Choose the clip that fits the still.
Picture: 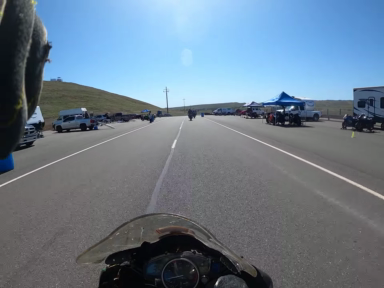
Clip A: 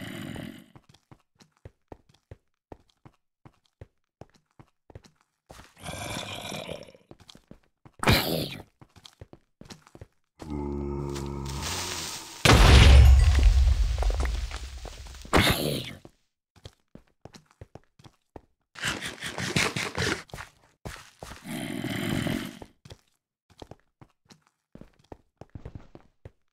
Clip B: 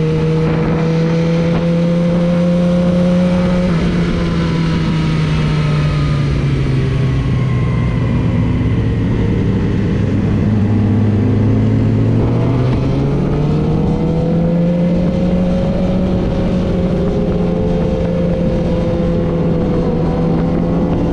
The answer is B